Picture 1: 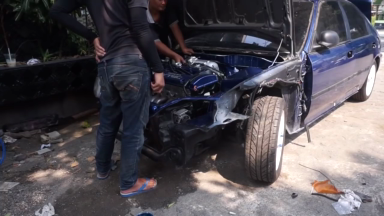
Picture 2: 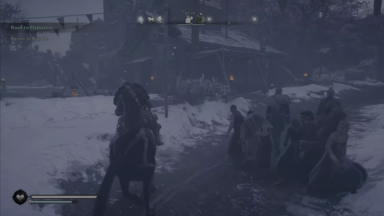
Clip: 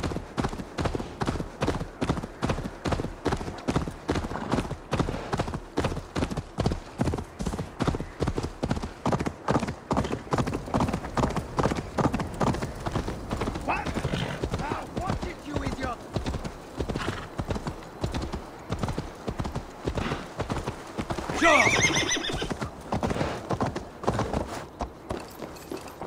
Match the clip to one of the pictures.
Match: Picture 2